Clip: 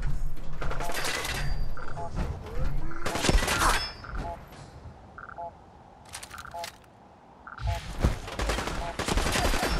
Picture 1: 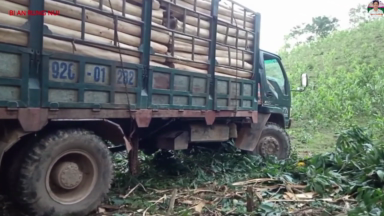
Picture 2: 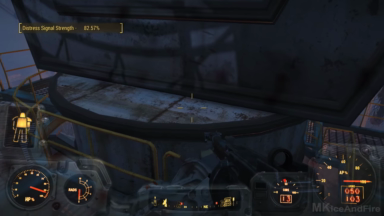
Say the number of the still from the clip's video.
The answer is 2